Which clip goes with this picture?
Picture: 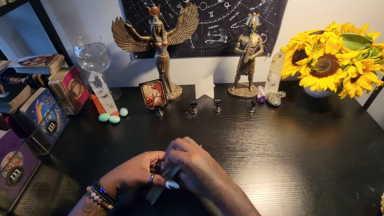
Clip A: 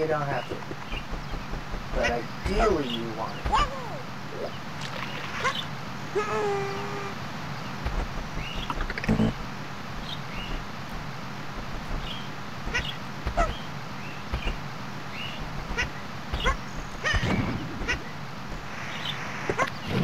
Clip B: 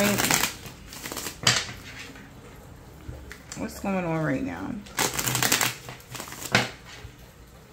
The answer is B